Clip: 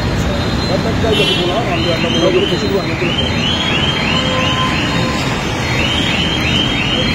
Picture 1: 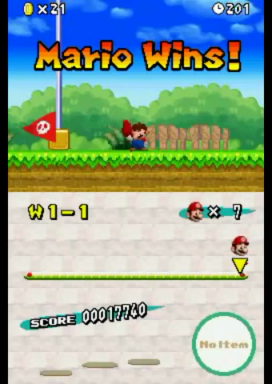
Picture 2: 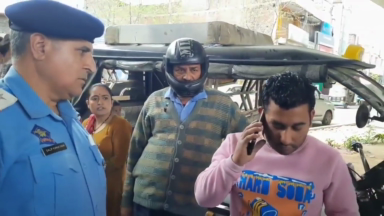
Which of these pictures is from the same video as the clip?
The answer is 2